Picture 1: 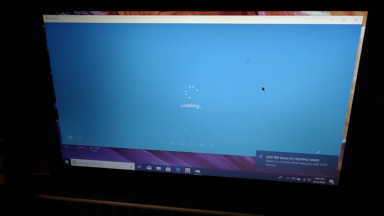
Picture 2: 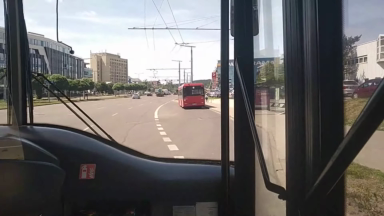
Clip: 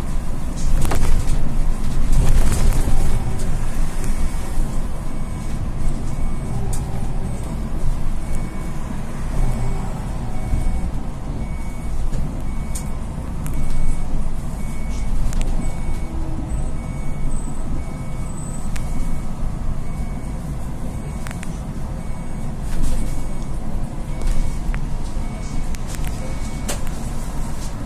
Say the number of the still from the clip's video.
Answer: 2